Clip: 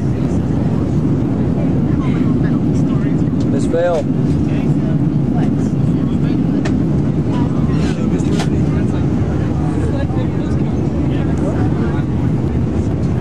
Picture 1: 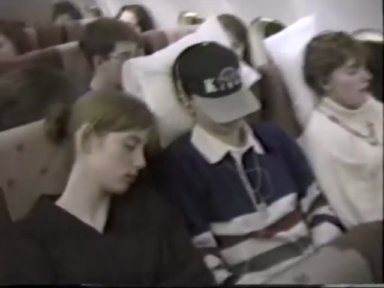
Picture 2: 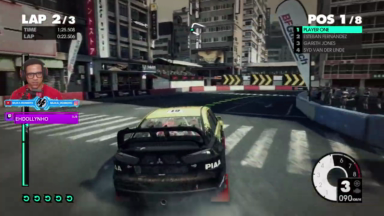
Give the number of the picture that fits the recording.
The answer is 1